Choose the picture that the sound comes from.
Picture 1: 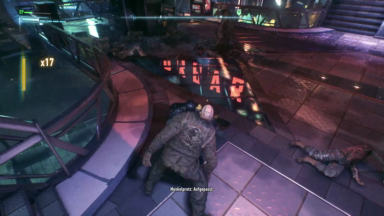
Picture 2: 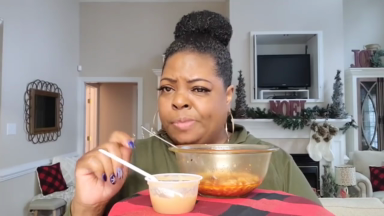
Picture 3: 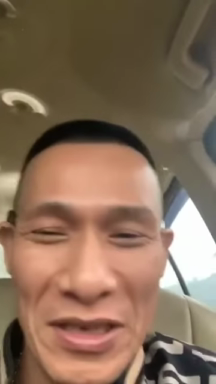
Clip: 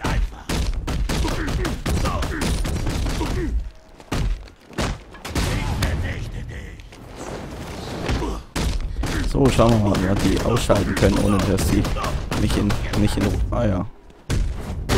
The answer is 1